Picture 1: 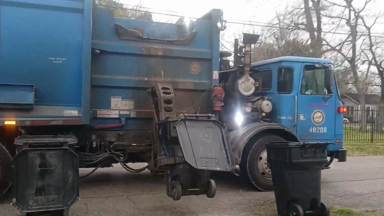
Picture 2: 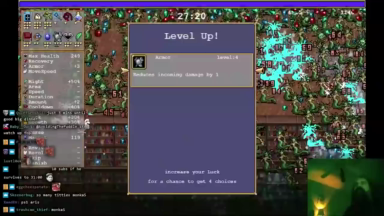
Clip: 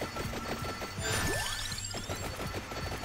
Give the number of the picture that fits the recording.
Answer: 2